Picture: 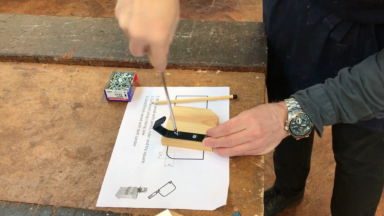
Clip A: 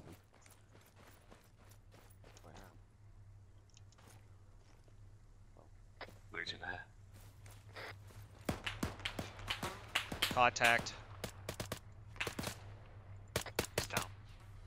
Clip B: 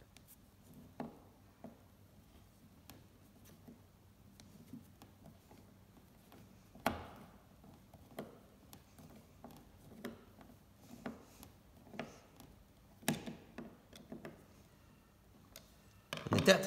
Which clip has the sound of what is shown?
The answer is B